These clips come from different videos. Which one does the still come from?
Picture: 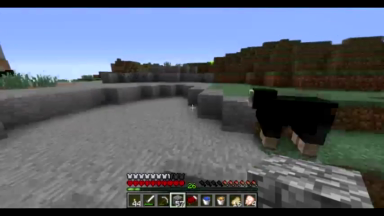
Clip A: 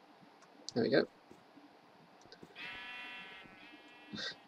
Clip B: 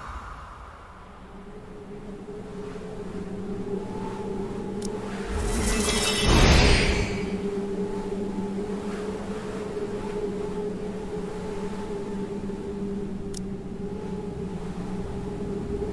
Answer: A